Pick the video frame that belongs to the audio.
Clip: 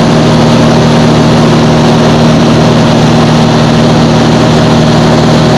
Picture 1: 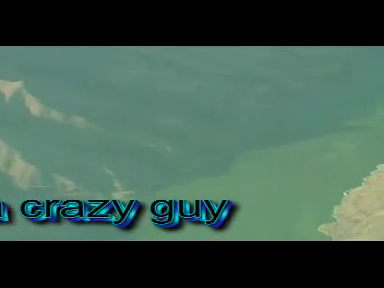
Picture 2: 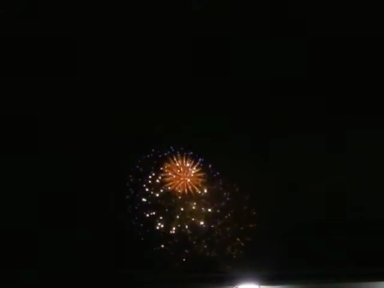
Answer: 1